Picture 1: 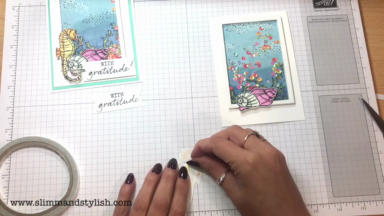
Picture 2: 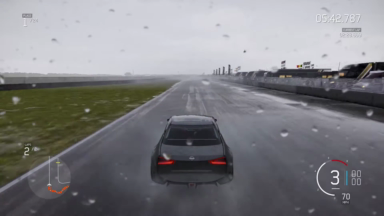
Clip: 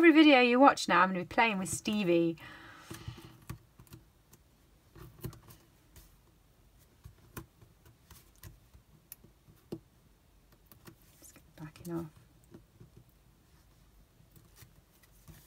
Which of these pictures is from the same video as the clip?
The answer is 1